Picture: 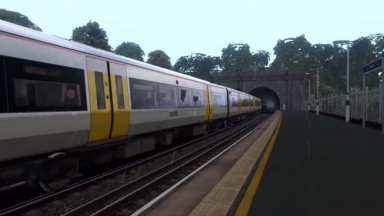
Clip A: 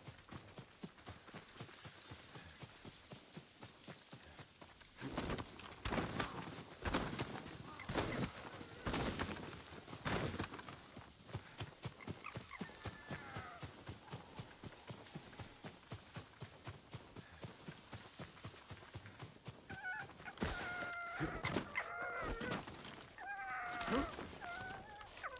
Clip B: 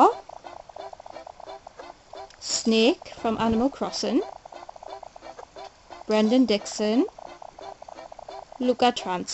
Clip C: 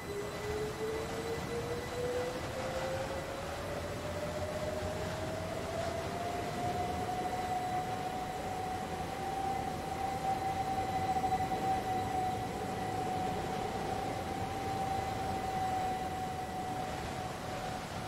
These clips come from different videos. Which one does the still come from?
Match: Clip C